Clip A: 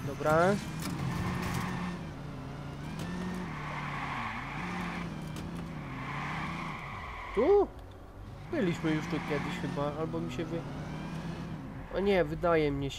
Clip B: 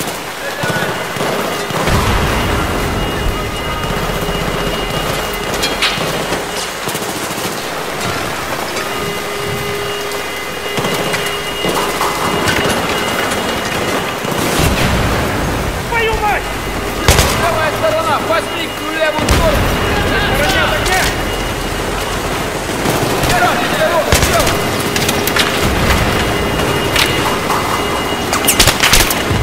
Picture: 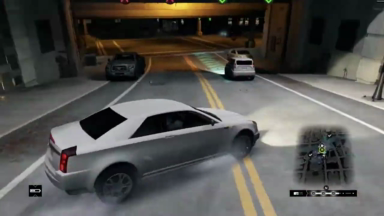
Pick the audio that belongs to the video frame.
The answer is A